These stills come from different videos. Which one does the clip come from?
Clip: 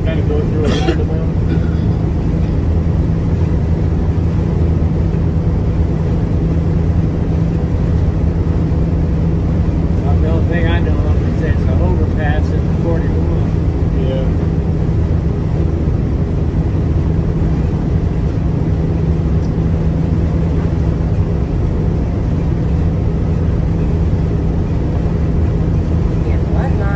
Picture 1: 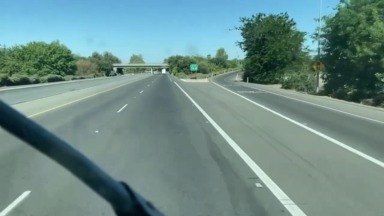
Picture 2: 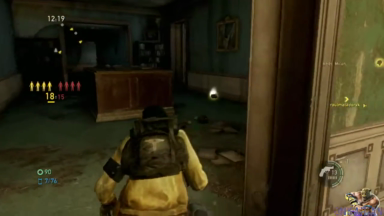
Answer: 1